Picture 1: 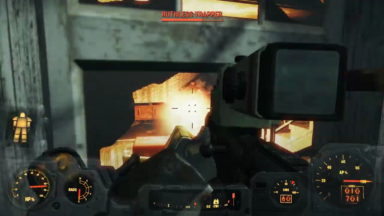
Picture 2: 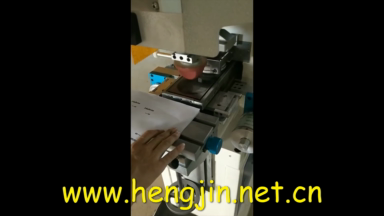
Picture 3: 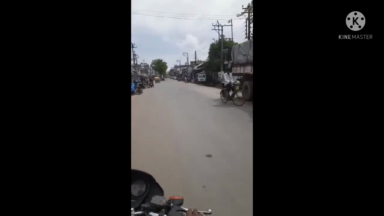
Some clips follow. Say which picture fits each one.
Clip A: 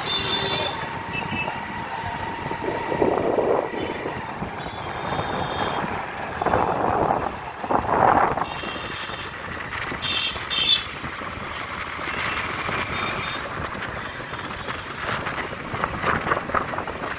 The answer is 3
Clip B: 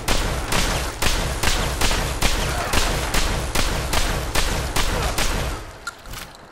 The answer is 1